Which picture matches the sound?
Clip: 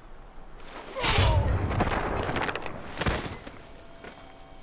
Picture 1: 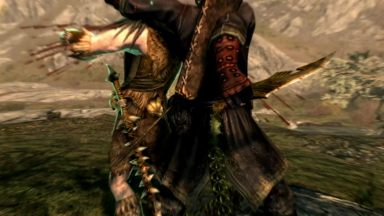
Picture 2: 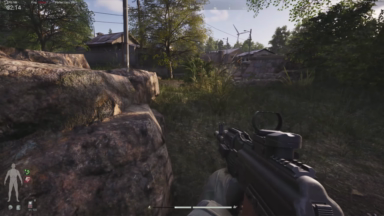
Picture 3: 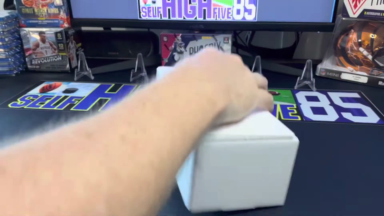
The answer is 1